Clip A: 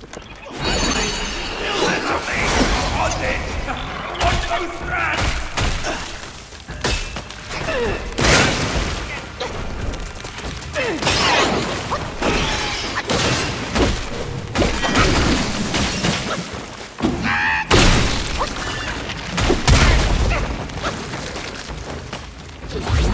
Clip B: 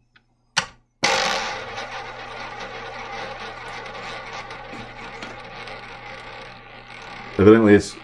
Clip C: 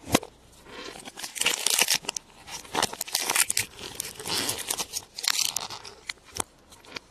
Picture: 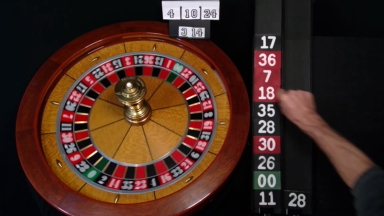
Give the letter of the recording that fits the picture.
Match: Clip B